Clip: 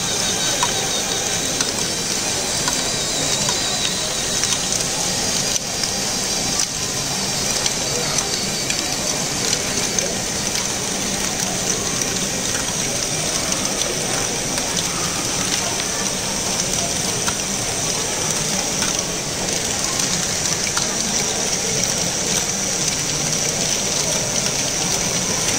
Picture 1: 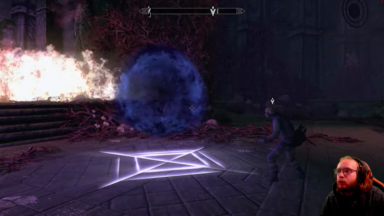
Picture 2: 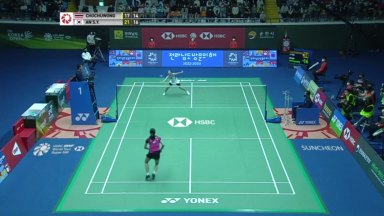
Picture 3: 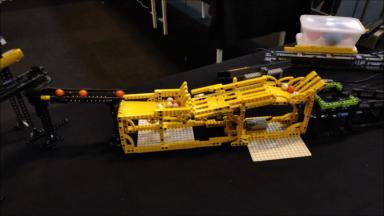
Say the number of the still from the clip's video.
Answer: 3